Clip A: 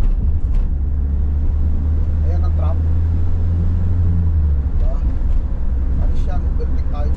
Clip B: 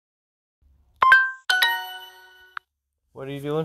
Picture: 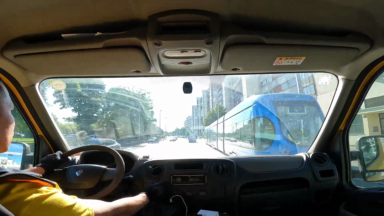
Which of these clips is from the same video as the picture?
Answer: A